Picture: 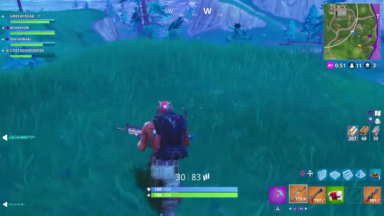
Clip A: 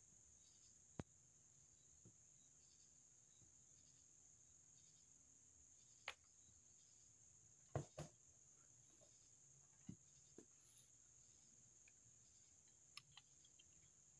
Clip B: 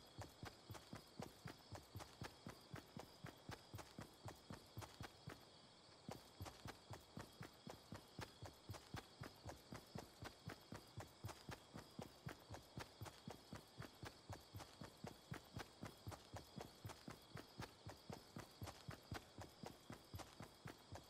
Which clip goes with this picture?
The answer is B